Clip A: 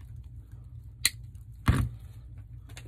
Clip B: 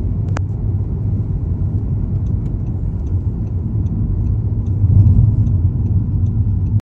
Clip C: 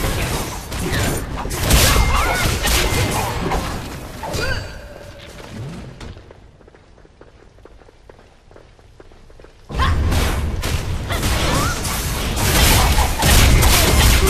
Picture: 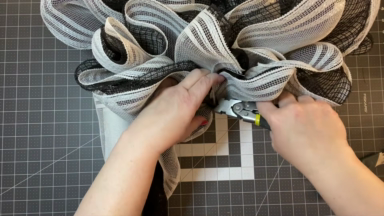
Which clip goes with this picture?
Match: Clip A